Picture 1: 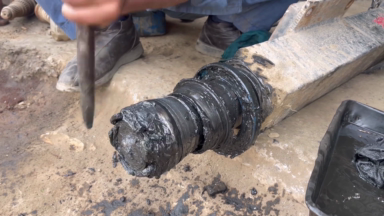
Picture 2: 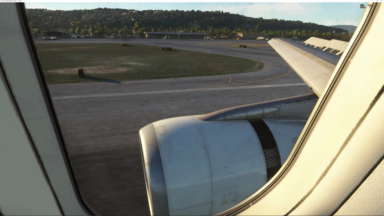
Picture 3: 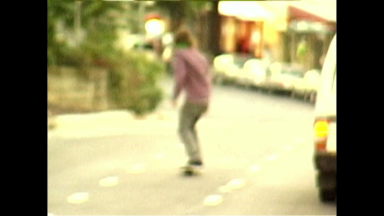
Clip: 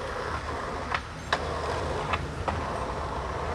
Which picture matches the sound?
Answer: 3